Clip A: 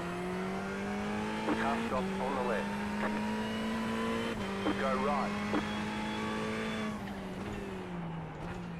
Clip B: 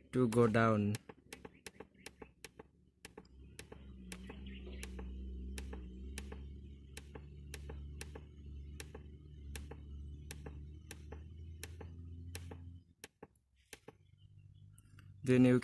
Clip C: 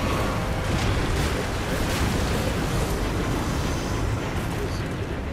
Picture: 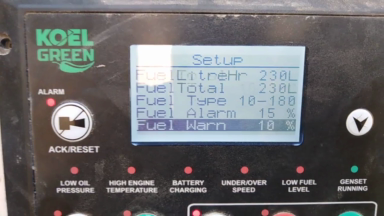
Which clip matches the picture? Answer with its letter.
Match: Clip B